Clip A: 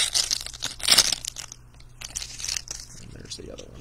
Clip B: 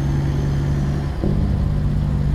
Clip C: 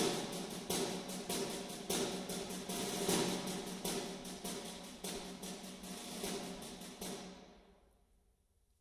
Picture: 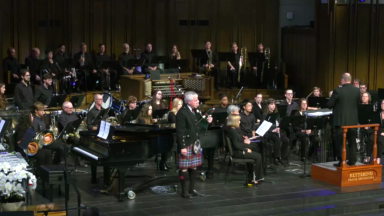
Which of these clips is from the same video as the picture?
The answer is C